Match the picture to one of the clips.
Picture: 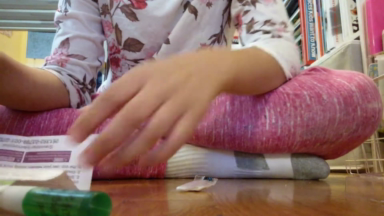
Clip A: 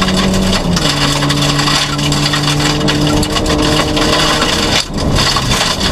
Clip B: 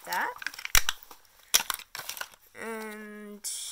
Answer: B